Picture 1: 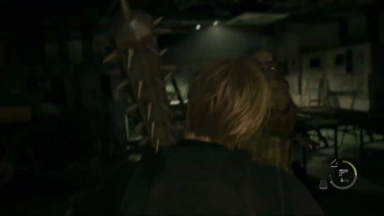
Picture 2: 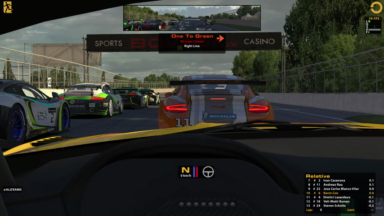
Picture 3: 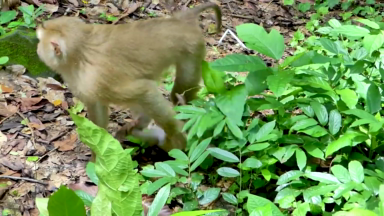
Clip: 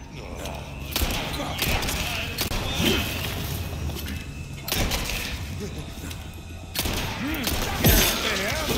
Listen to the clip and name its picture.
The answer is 1